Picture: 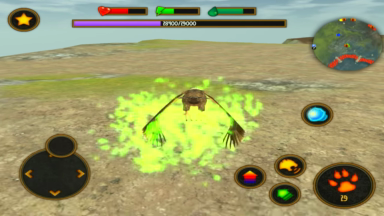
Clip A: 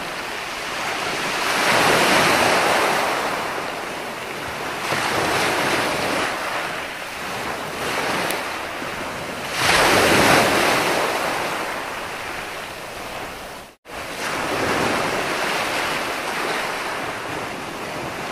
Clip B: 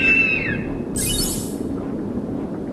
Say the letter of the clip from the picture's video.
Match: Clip B